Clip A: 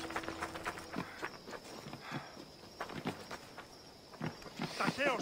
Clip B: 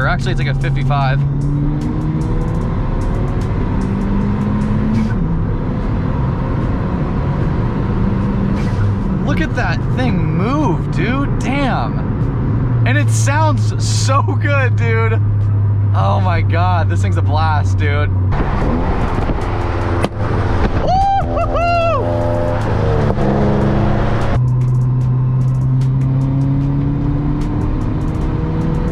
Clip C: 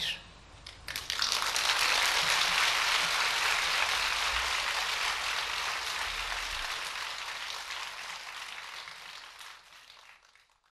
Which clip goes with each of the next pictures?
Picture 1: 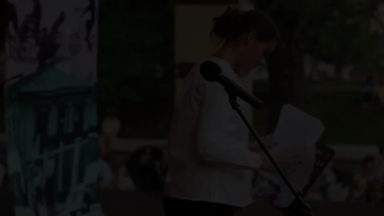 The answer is C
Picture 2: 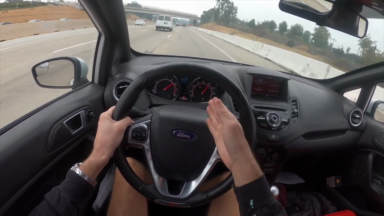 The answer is B